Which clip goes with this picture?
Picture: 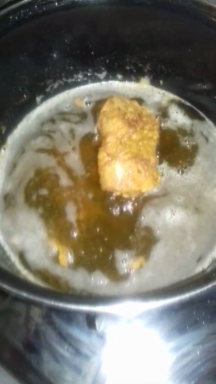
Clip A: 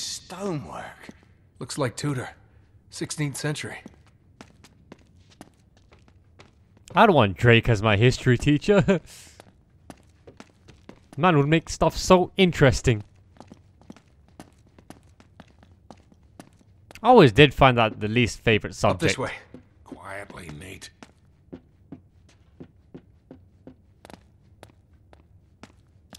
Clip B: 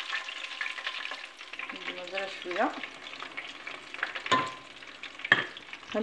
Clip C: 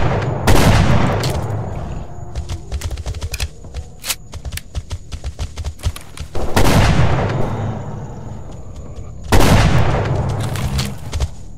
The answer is B